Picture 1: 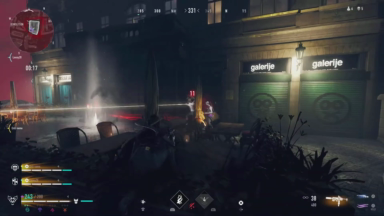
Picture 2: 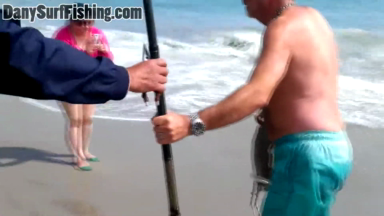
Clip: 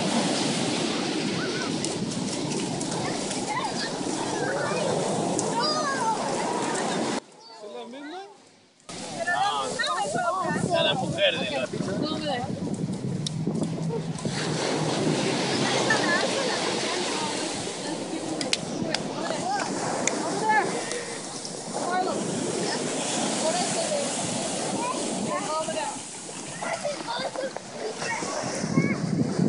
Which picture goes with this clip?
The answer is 2